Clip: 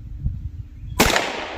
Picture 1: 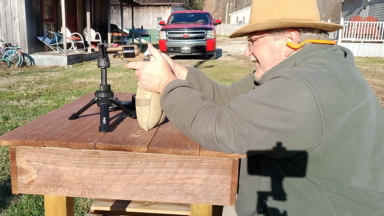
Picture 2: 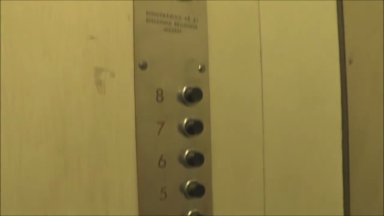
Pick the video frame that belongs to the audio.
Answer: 1